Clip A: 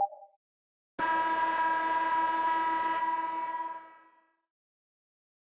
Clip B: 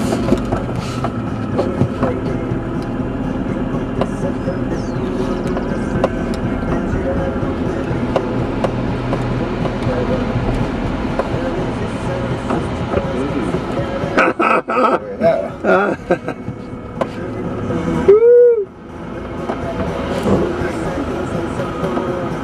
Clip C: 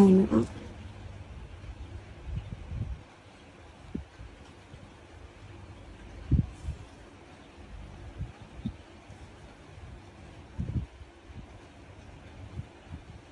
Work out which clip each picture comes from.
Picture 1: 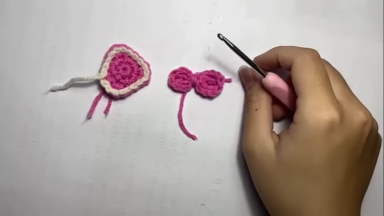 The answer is C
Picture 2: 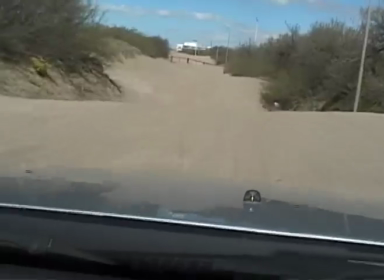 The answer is B